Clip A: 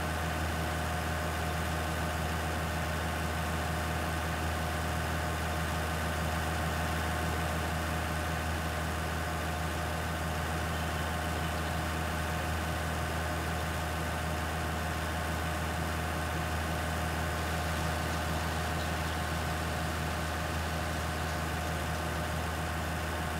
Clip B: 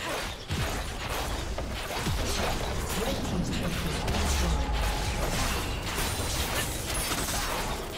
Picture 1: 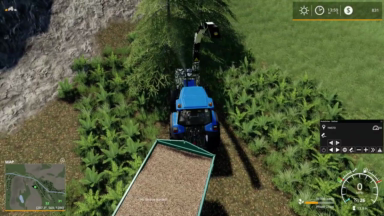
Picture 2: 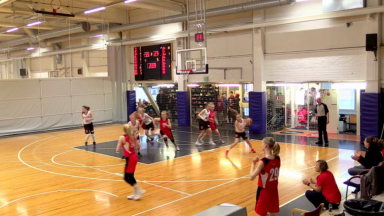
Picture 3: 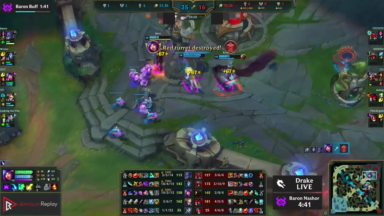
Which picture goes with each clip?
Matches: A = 1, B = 3